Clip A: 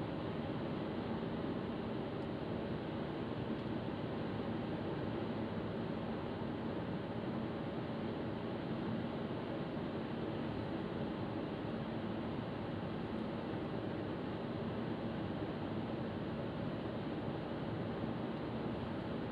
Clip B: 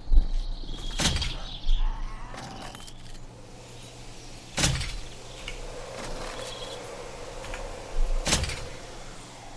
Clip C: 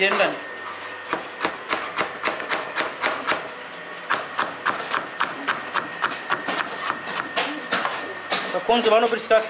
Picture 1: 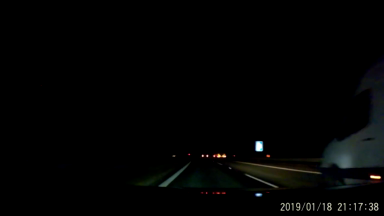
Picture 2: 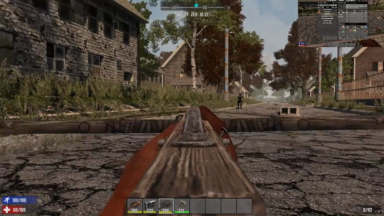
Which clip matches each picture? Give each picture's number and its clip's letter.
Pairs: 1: A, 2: B